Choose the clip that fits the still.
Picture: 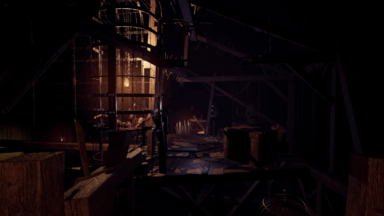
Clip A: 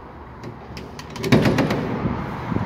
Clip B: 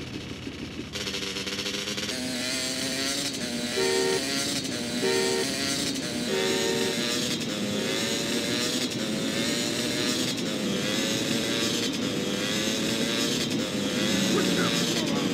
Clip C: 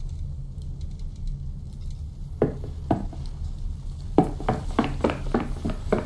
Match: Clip C